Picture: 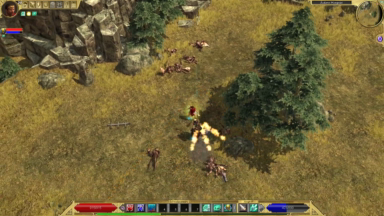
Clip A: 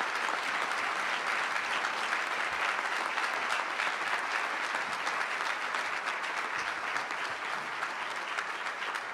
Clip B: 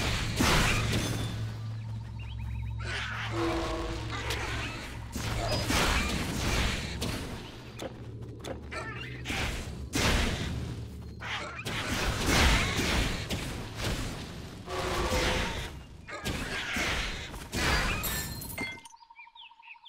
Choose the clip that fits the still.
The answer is B